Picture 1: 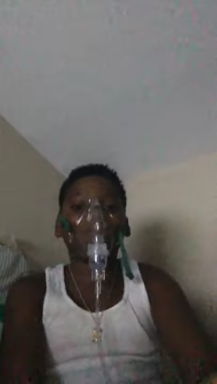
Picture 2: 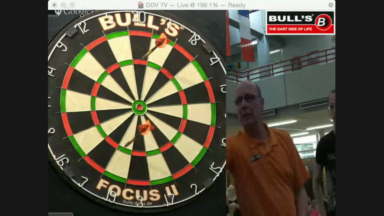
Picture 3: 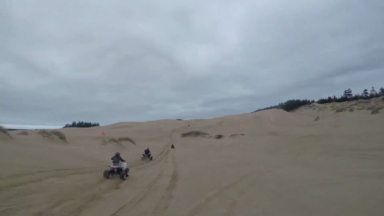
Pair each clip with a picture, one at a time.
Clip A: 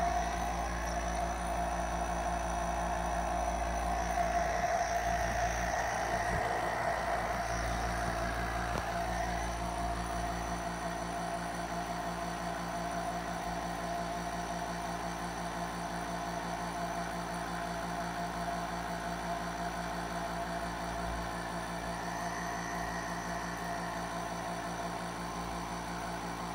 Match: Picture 1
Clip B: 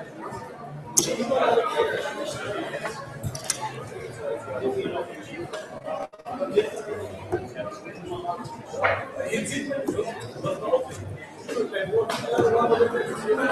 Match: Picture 2